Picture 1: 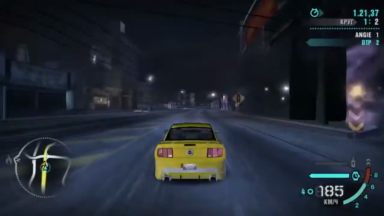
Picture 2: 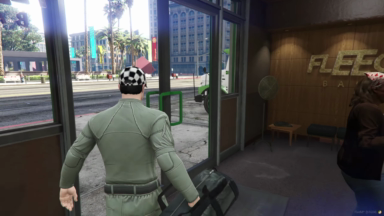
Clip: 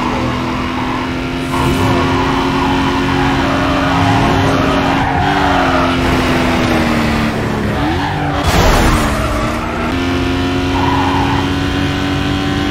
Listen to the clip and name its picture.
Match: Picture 1